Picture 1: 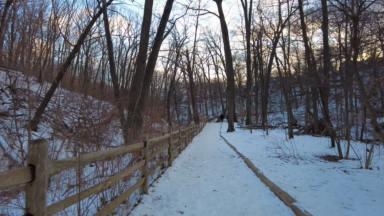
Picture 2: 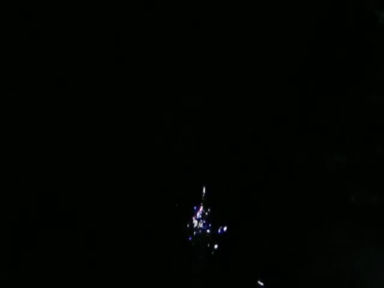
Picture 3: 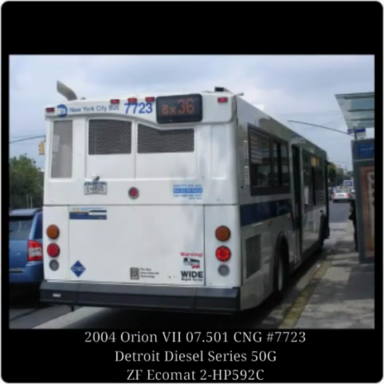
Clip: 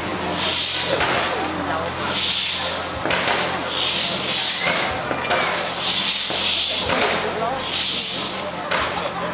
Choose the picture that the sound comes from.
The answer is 2